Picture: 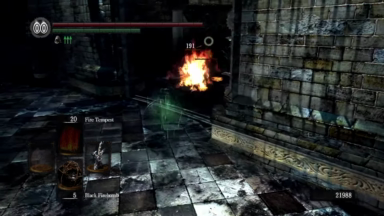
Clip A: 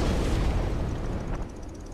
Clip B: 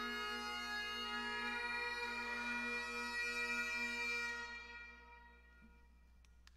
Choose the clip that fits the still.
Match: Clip A